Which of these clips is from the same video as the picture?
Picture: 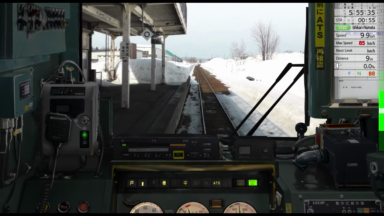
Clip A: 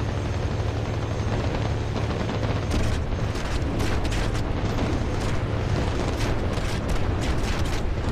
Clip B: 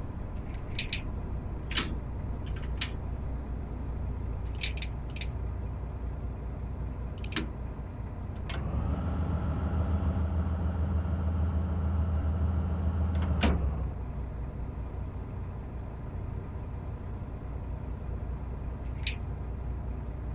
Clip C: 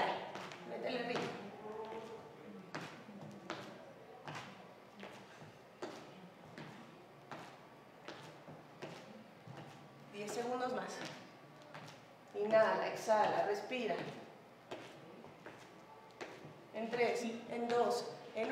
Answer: B